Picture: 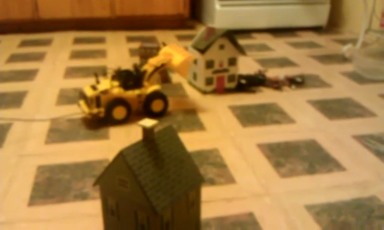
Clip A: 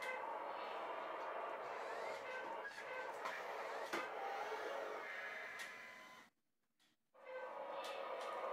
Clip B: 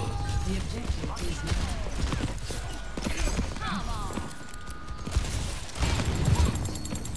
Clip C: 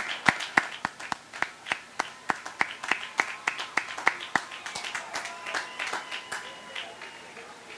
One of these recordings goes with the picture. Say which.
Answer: A